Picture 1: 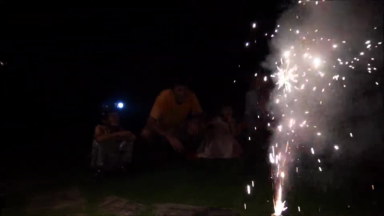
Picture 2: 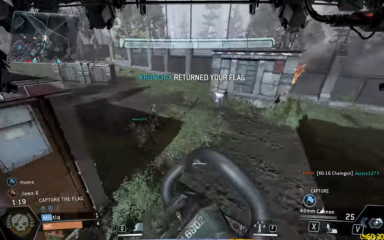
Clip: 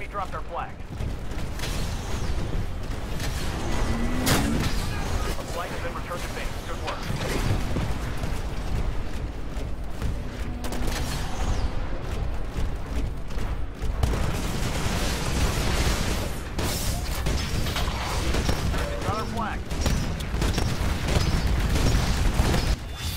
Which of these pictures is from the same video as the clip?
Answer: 2